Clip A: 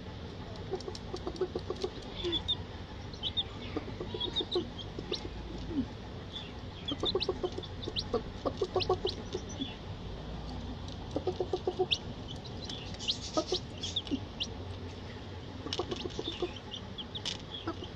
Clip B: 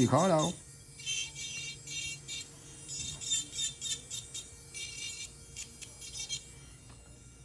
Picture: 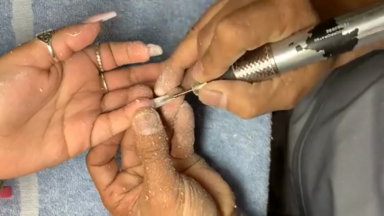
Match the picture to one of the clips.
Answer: B